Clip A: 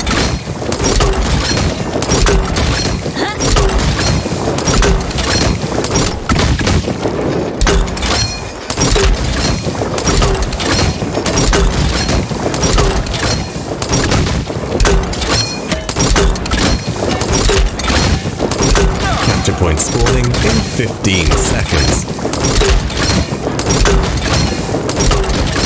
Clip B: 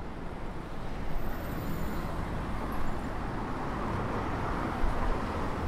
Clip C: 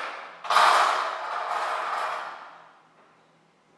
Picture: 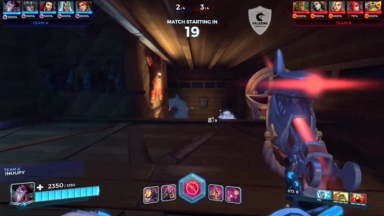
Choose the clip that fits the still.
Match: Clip A